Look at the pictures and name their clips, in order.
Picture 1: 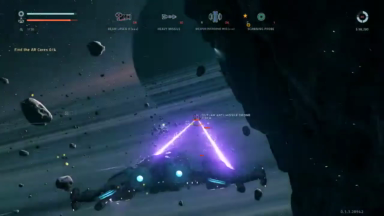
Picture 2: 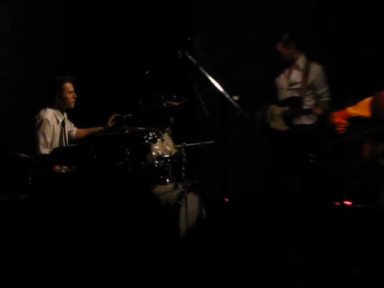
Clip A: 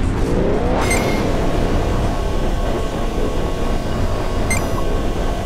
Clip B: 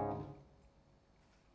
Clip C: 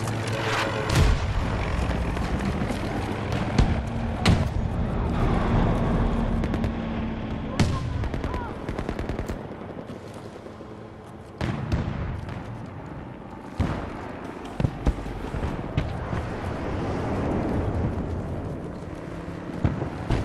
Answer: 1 A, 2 B